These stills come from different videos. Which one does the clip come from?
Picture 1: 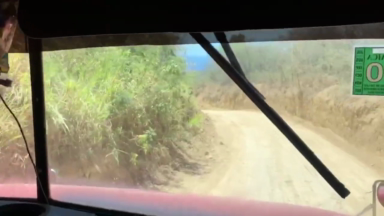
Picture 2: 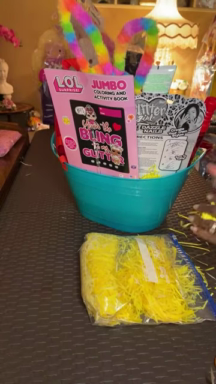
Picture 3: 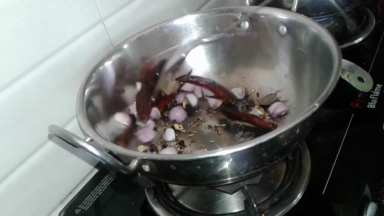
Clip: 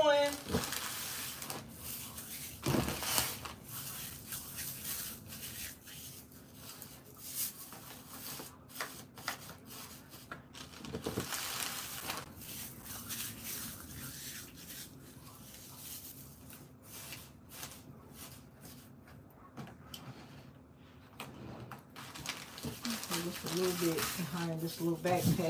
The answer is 2